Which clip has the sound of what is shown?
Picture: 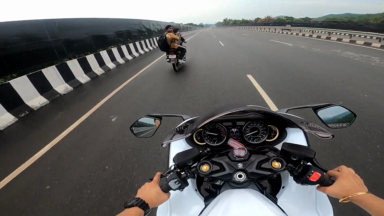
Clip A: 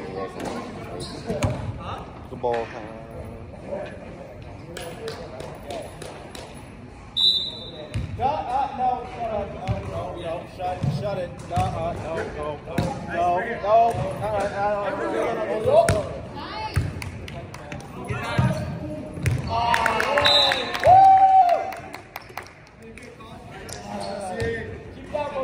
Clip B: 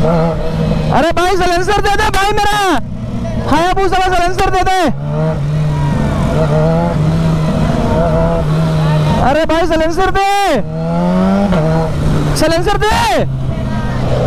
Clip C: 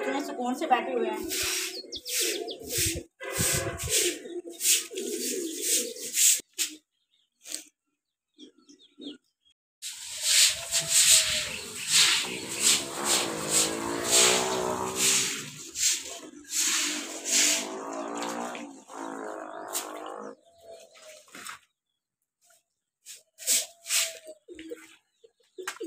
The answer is B